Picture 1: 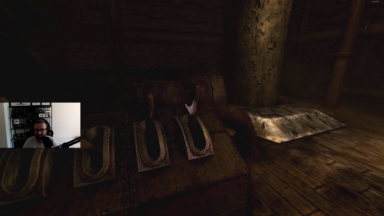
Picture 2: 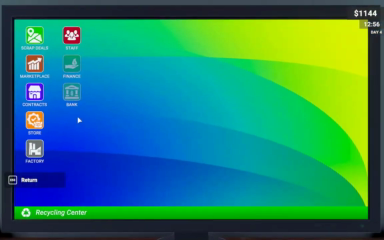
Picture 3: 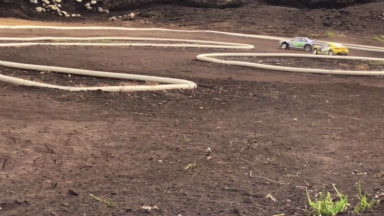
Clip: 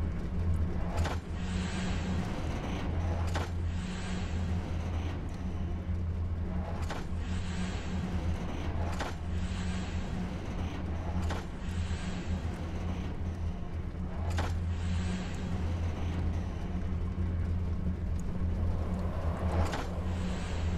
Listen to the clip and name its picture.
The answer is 1